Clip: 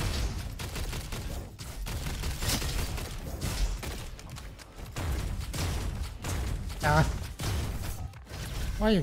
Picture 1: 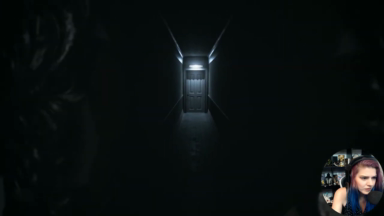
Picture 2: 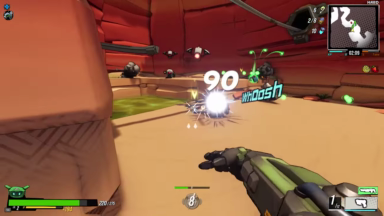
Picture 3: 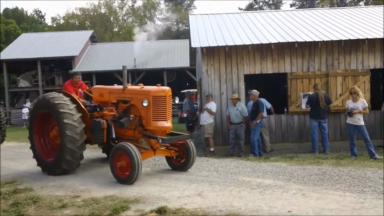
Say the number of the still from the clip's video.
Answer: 2